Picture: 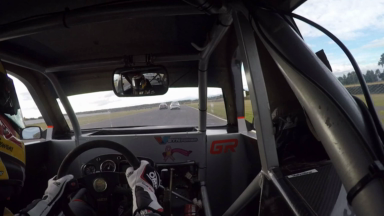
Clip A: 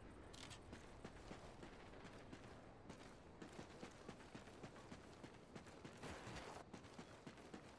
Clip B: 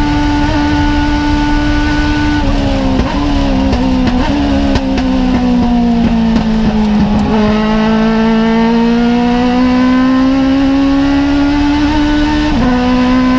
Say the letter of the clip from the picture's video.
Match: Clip B